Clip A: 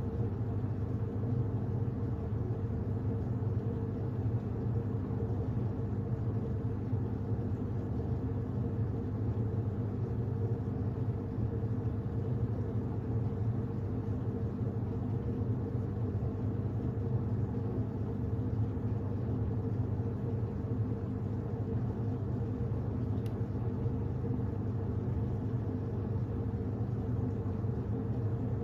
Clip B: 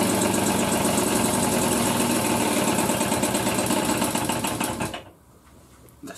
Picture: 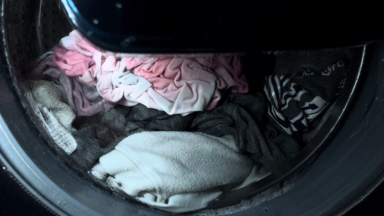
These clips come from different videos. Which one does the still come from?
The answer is A